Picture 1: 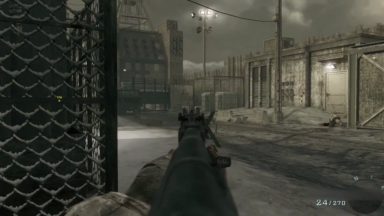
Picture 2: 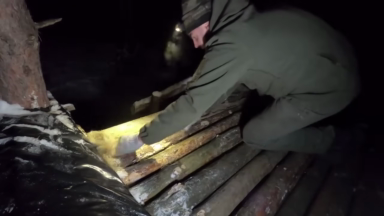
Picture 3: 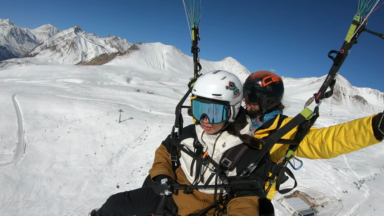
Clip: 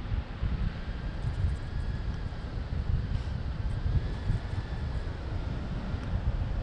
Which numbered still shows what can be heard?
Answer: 3